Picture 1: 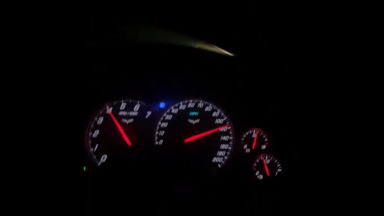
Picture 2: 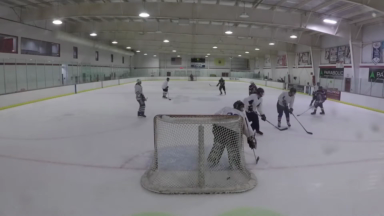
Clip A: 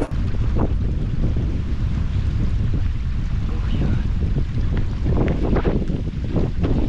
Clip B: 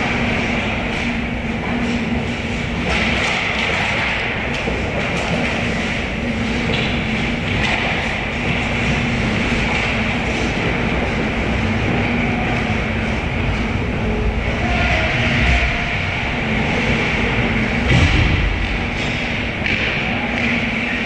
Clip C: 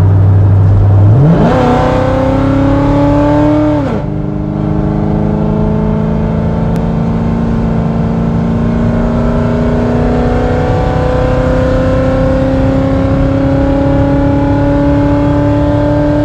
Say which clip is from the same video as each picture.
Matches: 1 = C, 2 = B